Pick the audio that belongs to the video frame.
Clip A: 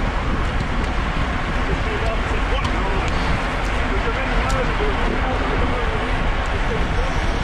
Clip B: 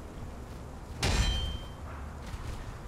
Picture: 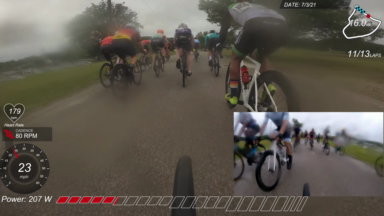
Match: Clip A